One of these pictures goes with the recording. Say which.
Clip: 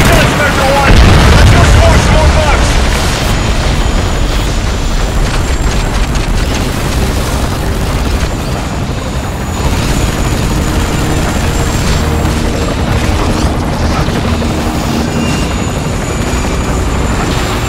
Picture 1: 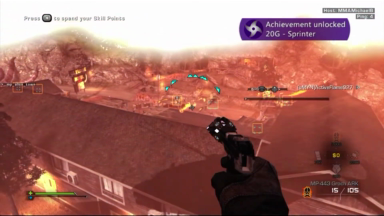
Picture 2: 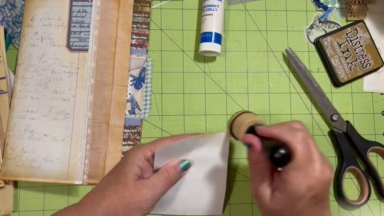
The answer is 1